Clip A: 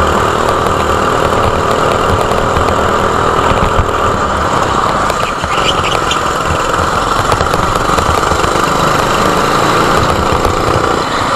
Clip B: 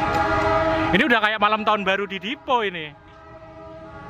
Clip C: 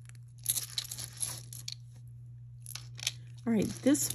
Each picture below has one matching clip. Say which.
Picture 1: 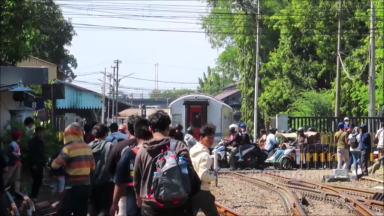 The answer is B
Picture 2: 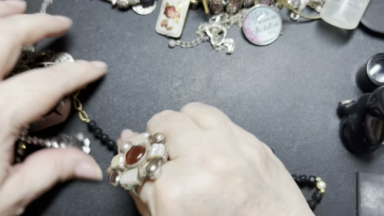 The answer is C